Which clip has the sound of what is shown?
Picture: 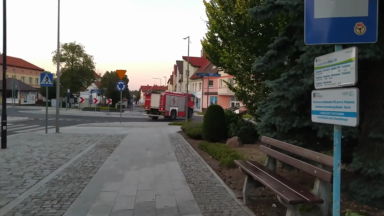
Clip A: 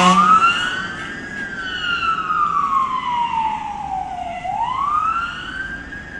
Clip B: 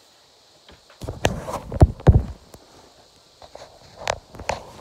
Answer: A